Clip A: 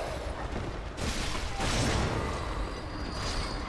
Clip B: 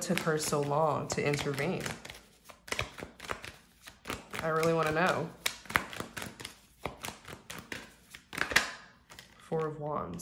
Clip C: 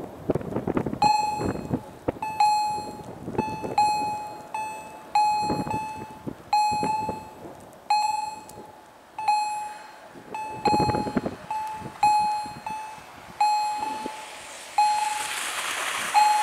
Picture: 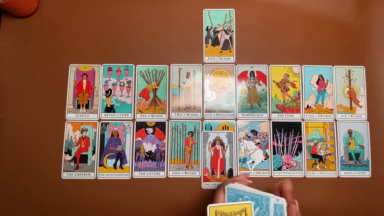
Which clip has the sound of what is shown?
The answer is B